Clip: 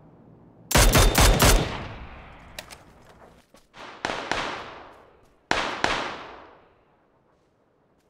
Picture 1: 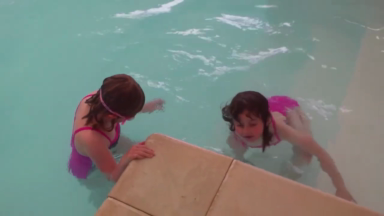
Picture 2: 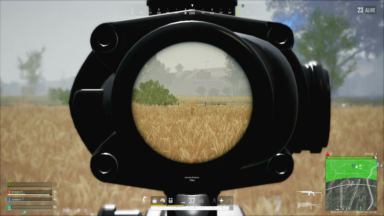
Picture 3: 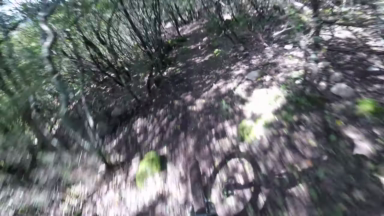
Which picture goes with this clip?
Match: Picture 2